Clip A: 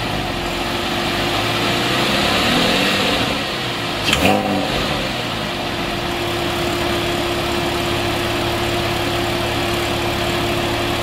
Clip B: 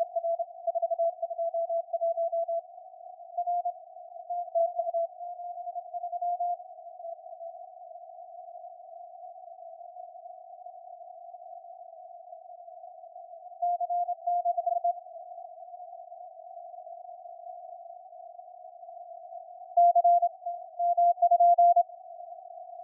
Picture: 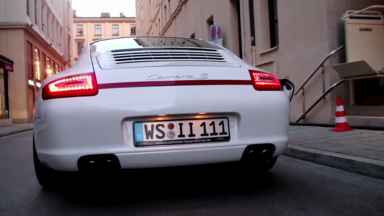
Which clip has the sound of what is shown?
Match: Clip A